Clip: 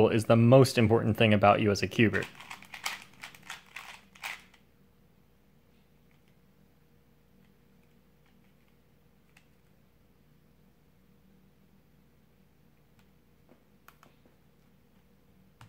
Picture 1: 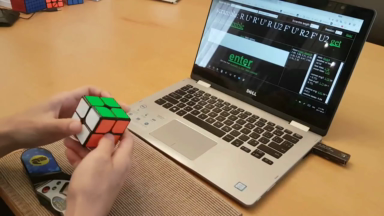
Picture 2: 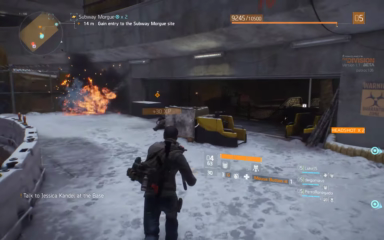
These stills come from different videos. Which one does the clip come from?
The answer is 1